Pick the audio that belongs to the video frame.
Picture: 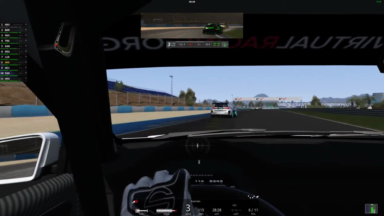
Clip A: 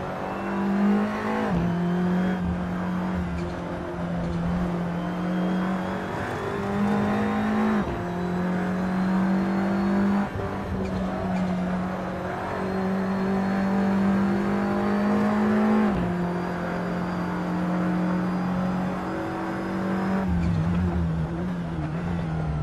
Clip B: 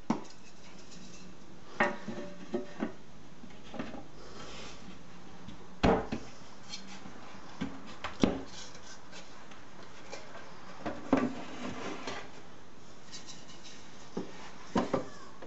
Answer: A